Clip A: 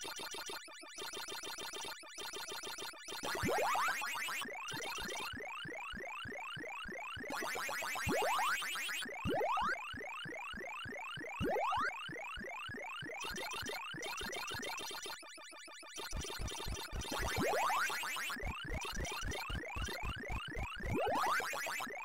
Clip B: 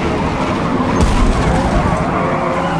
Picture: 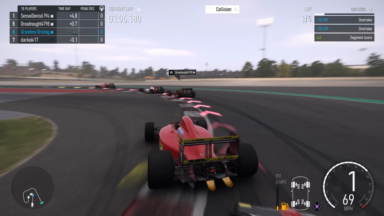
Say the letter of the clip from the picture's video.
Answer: B